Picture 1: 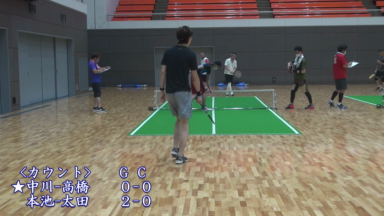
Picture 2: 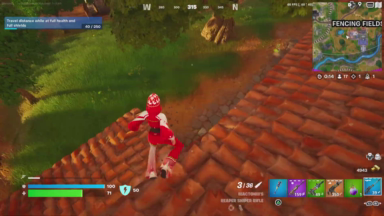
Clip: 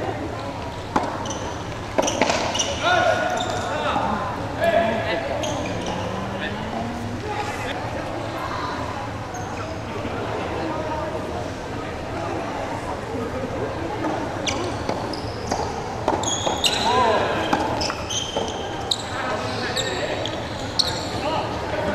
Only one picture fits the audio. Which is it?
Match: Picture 1